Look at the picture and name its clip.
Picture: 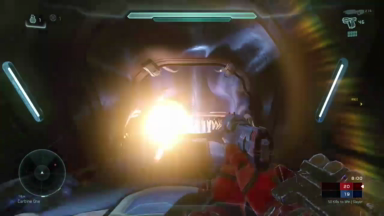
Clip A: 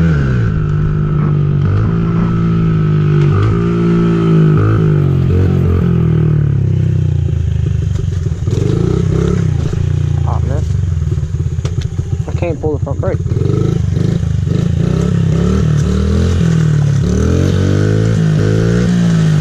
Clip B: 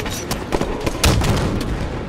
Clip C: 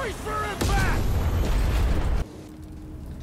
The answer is B